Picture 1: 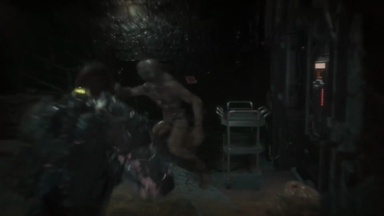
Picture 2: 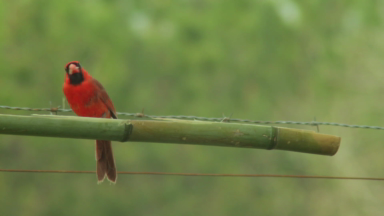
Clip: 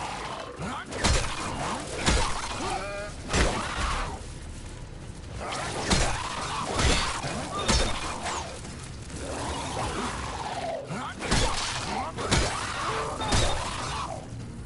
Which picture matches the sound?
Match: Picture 1